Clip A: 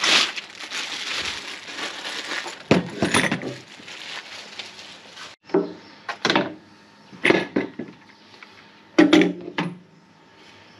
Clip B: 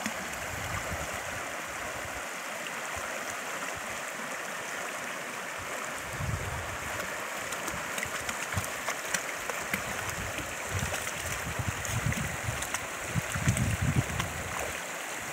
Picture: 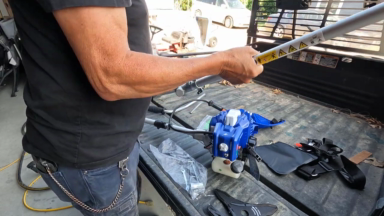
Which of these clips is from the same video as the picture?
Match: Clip A